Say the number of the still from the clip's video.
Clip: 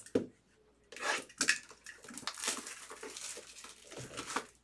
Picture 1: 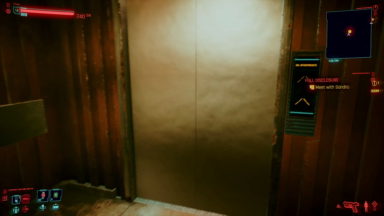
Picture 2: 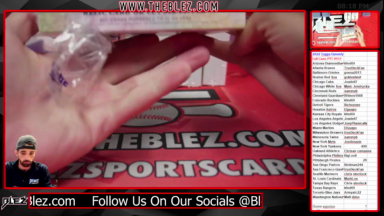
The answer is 2